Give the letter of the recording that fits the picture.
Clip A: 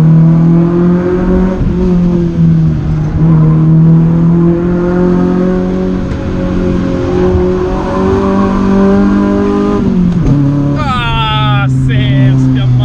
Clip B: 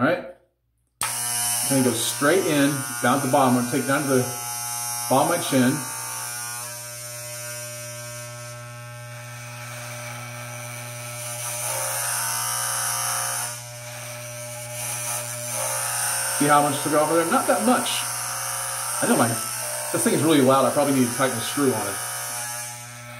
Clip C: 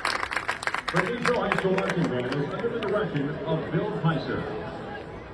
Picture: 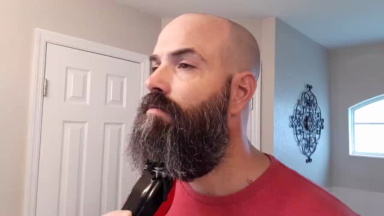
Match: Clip B